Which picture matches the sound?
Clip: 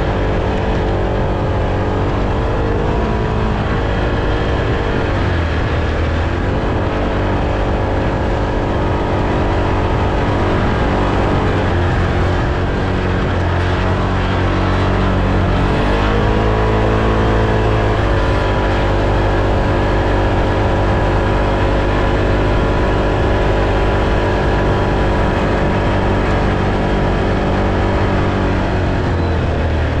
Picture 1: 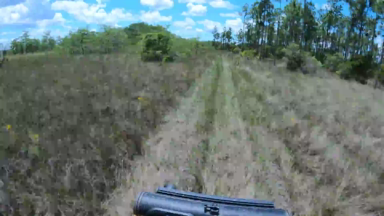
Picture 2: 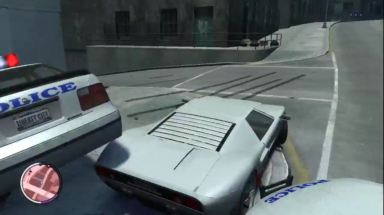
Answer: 1